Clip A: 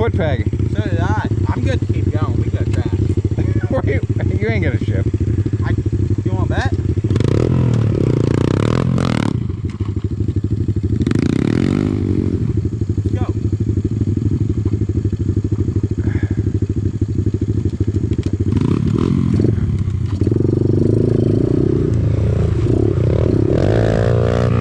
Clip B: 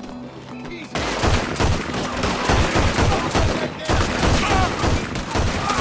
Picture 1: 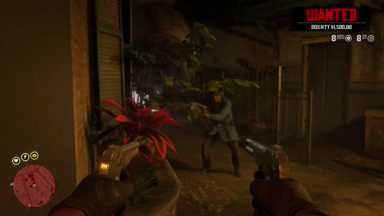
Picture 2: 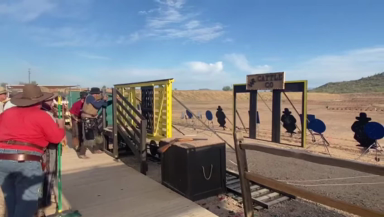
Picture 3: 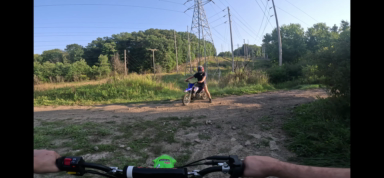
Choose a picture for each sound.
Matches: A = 3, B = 1